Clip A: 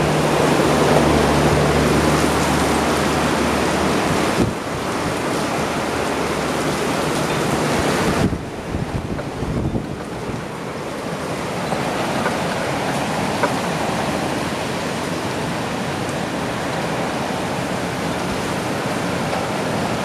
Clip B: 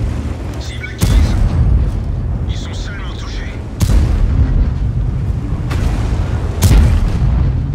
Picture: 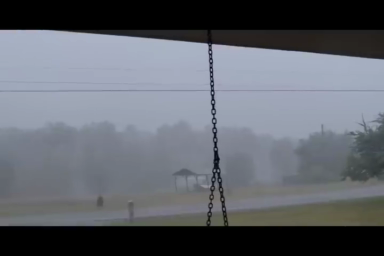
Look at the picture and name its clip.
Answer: A